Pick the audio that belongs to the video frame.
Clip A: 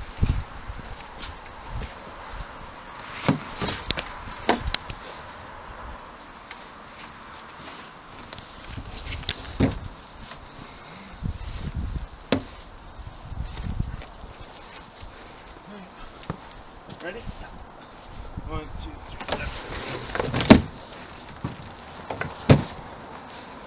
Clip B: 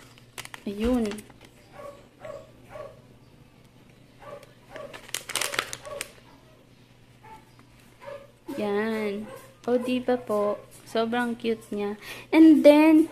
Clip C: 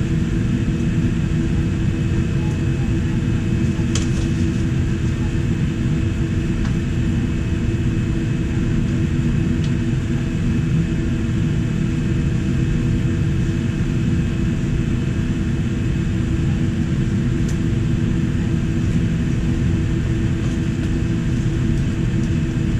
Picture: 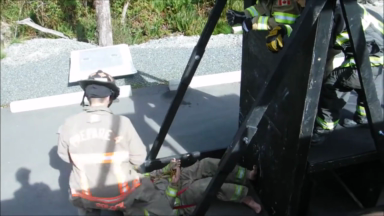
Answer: A